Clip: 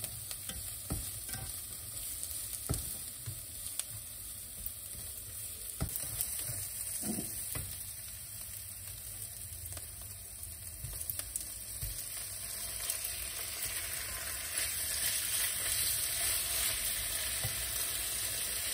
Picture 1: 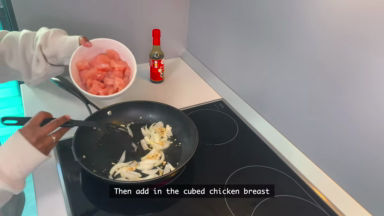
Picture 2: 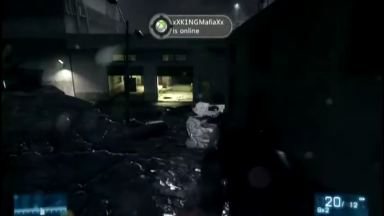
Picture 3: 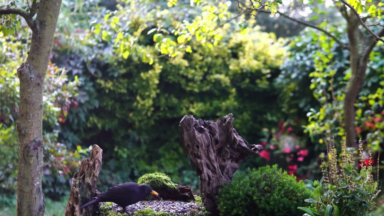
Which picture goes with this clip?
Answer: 1